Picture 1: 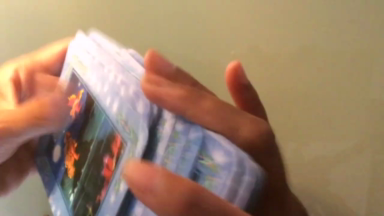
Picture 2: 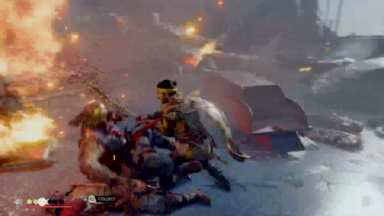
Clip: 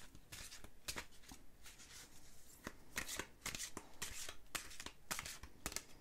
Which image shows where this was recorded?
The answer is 1